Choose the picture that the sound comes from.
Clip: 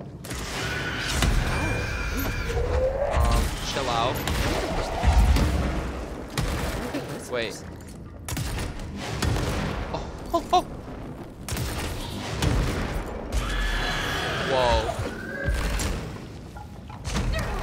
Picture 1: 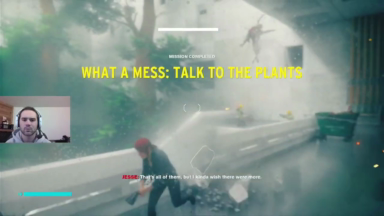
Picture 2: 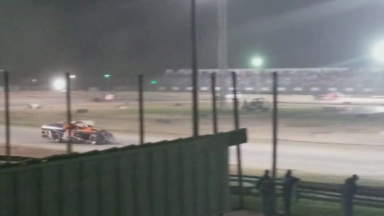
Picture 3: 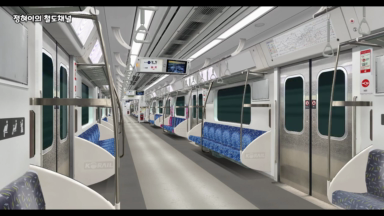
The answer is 1